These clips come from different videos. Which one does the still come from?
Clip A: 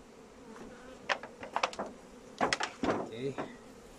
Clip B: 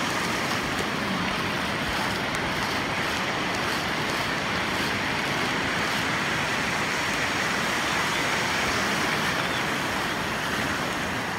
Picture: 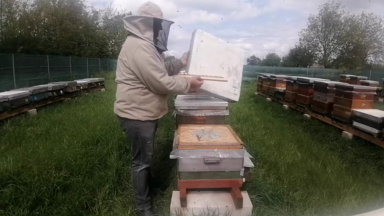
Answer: A